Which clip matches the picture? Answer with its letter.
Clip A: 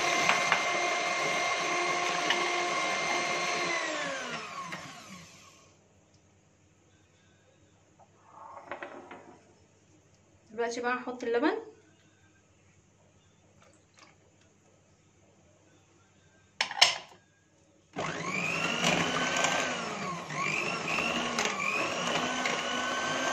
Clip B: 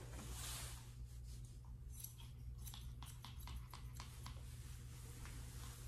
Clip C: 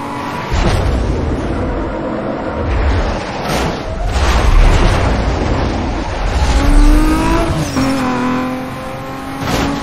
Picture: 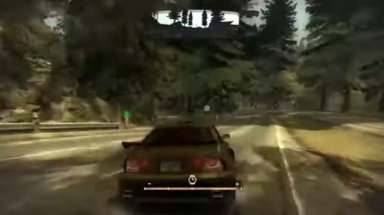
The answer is C